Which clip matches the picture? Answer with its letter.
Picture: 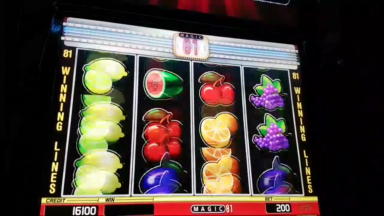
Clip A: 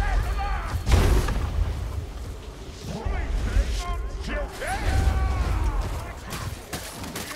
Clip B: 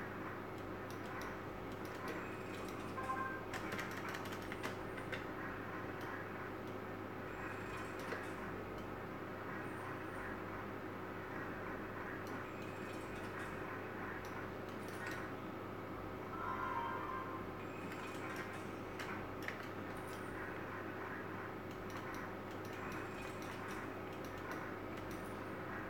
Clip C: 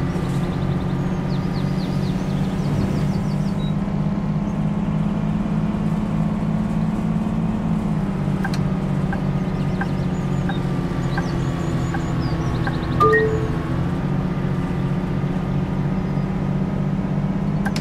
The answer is B